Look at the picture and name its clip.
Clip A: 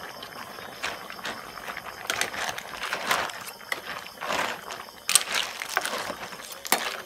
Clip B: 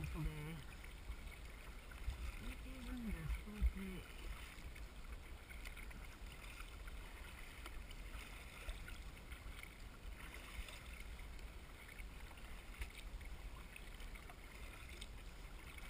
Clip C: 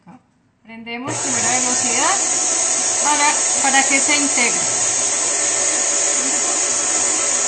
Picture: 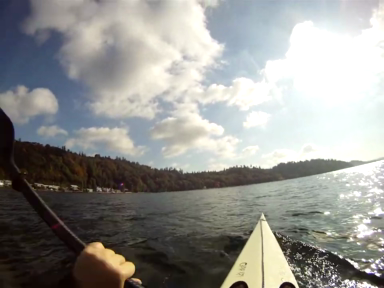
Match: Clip B